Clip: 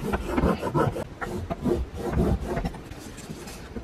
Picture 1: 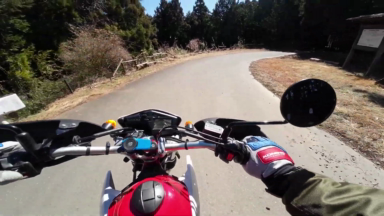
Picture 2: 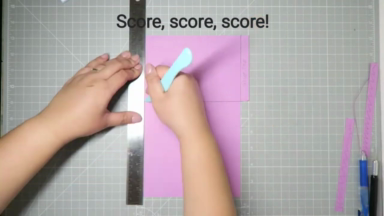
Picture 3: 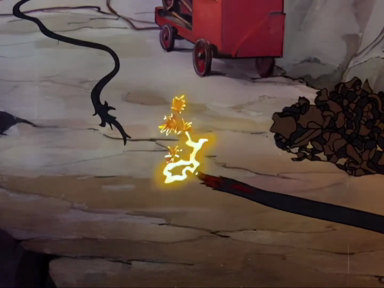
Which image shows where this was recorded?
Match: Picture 2